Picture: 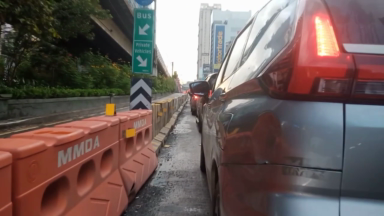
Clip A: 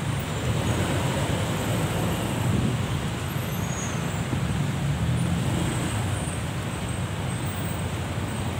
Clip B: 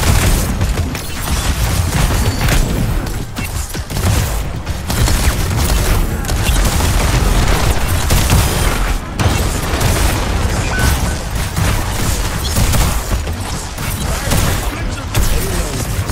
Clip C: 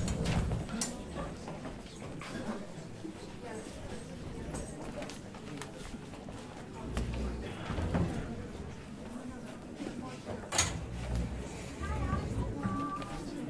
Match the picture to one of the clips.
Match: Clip A